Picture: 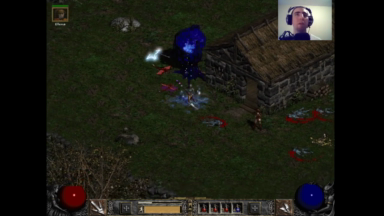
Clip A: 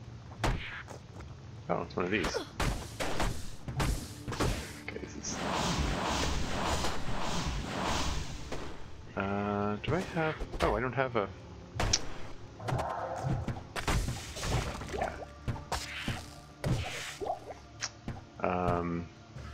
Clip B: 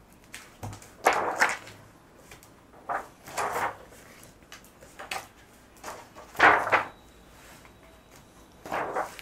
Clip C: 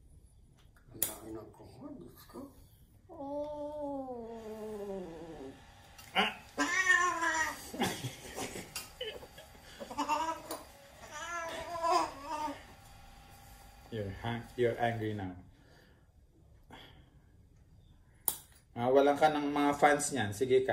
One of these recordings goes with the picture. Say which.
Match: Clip A